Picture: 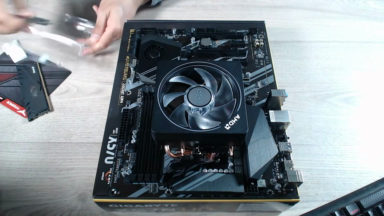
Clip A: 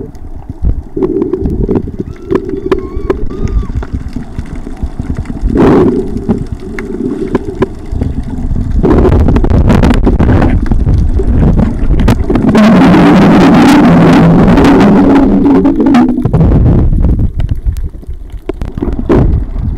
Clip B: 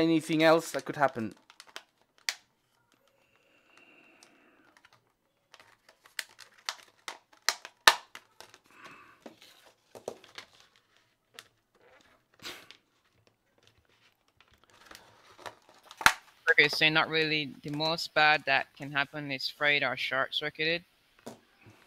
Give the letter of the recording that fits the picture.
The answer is B